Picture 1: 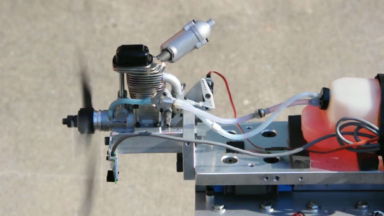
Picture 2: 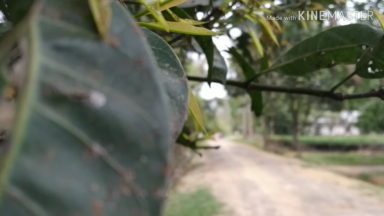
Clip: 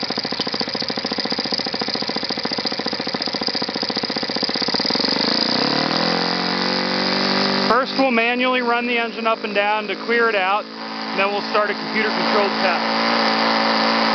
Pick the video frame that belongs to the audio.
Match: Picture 1